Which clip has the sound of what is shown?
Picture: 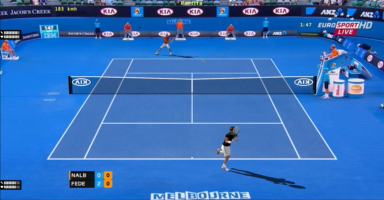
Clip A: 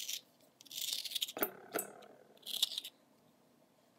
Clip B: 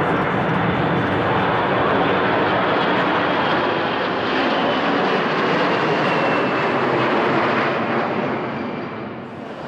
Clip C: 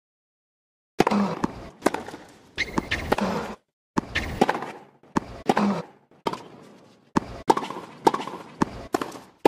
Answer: C